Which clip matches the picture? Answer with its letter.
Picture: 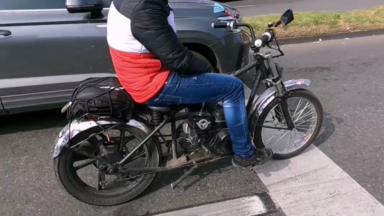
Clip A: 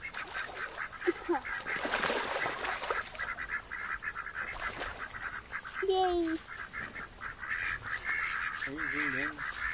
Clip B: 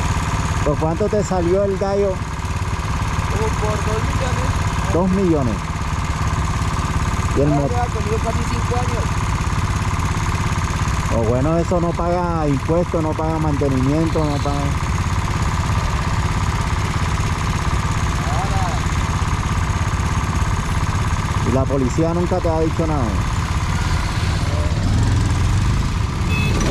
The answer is B